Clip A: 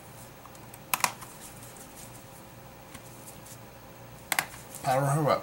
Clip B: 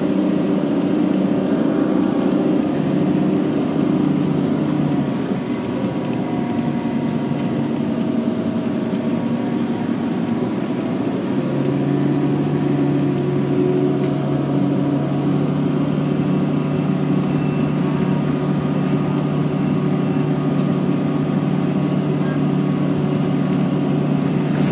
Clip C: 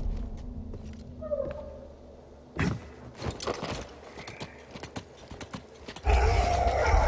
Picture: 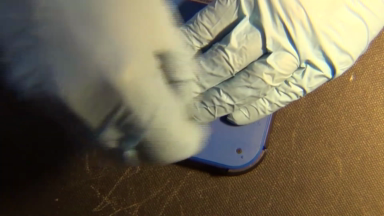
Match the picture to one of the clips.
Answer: A